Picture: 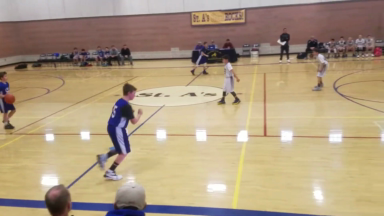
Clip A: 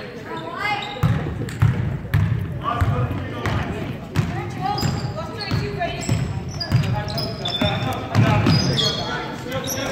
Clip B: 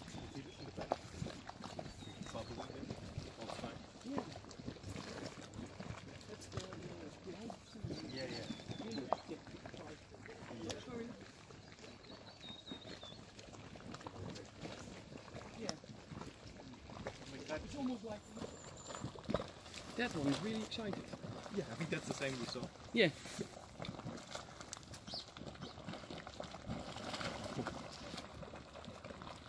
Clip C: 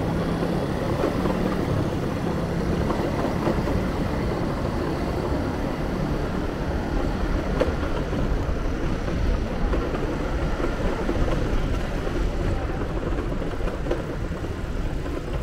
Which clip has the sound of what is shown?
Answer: A